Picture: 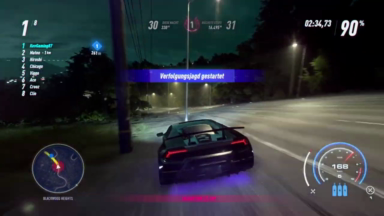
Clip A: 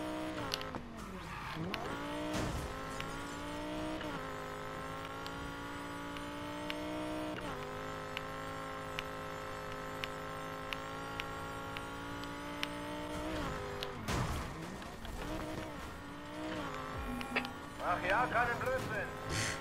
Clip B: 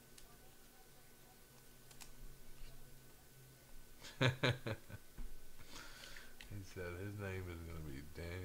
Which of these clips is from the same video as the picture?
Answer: A